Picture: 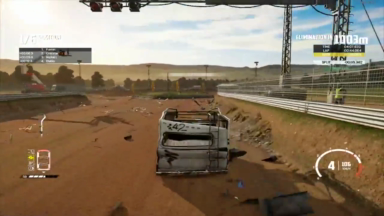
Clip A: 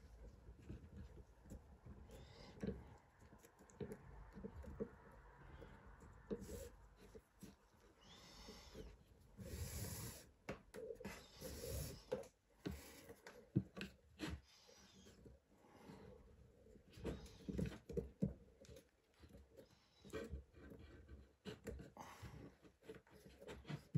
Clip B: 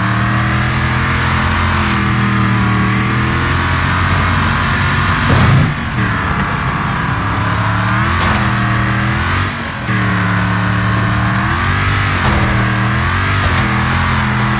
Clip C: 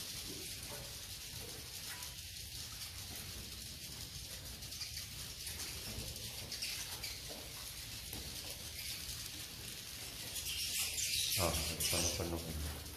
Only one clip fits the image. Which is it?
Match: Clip B